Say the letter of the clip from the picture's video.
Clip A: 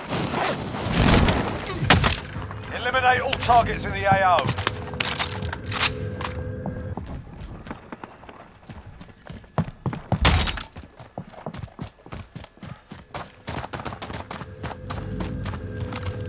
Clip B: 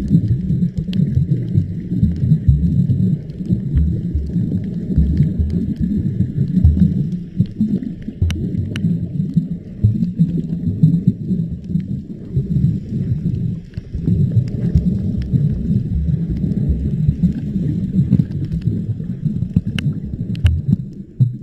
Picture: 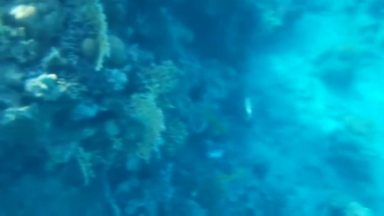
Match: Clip B